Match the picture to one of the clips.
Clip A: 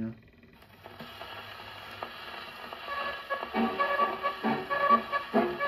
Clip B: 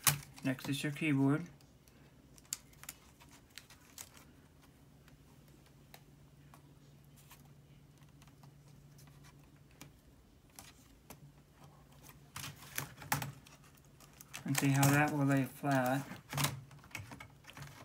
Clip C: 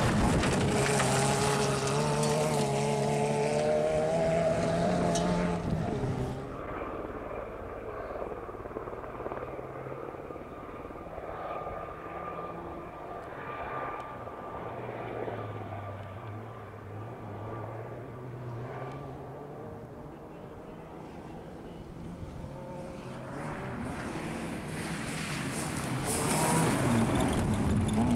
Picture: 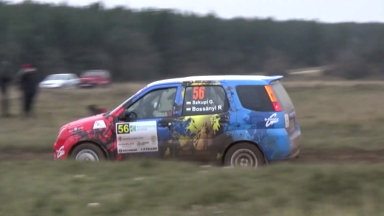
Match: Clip C